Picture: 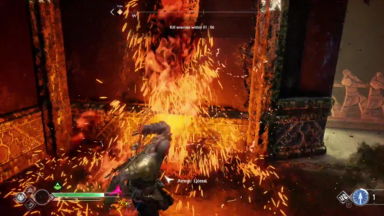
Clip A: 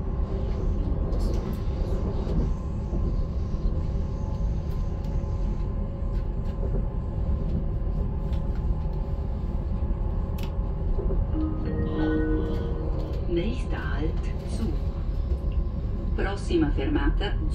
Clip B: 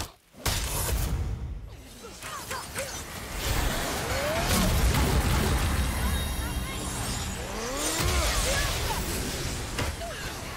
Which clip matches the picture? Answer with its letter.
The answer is B